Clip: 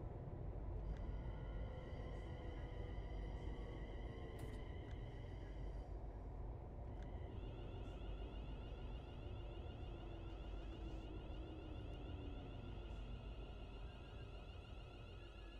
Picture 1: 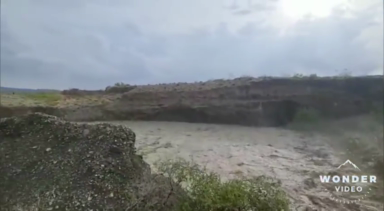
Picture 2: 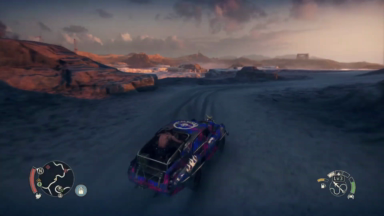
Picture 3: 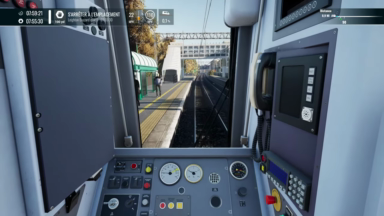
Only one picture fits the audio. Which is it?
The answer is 3